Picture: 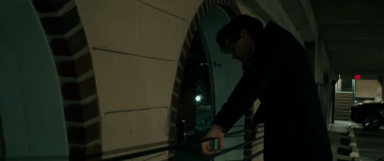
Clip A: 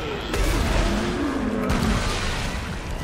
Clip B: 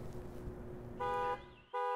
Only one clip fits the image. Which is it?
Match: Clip B